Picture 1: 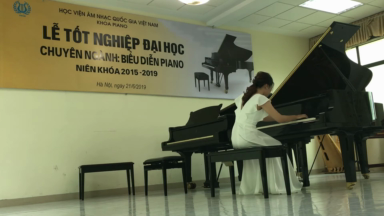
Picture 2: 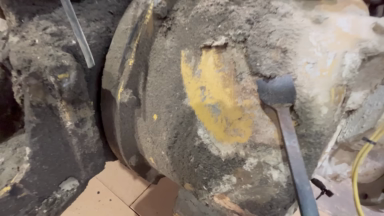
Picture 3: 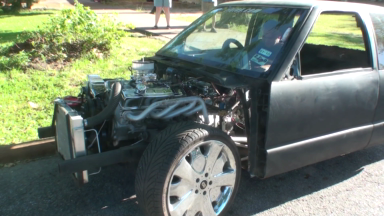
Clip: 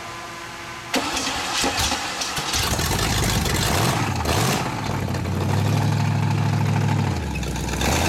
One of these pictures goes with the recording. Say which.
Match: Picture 3